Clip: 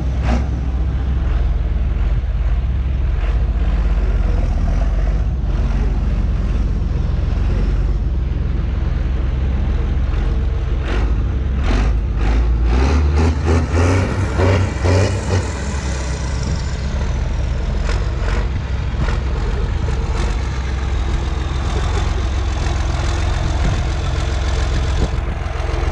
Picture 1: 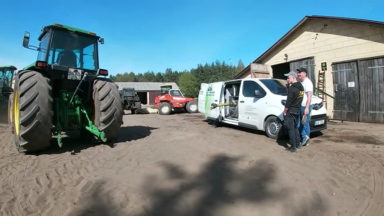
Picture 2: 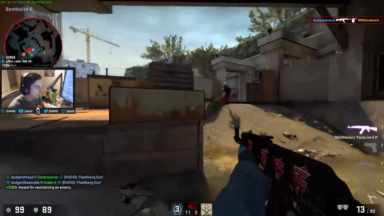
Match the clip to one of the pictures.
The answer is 1